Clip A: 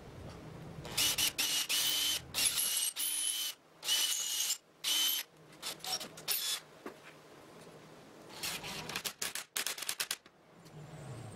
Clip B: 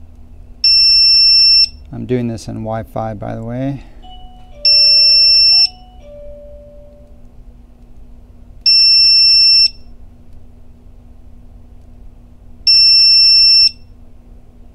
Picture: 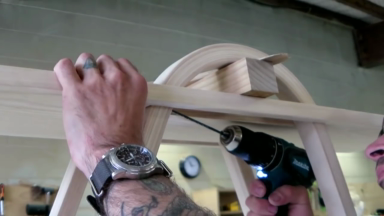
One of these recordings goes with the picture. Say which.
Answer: A